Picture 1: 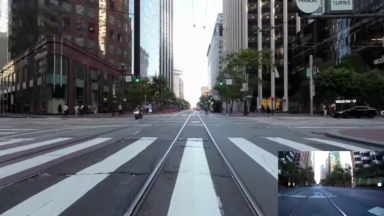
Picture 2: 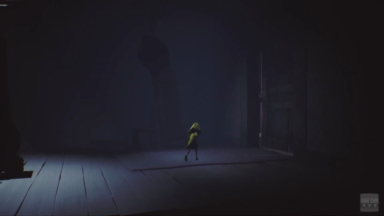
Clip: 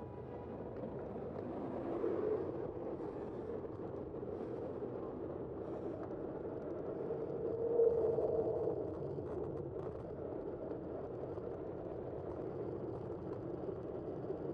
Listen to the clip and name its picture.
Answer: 1